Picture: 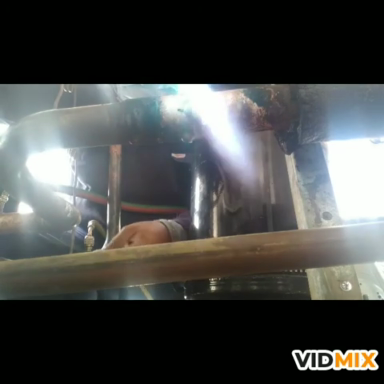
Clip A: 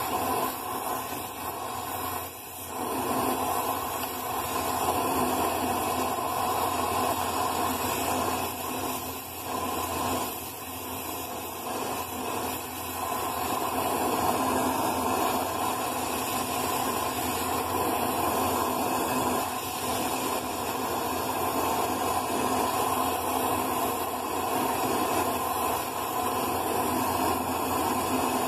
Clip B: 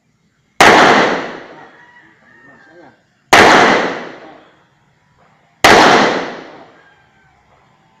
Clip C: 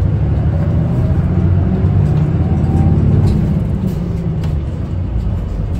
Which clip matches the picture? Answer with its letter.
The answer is A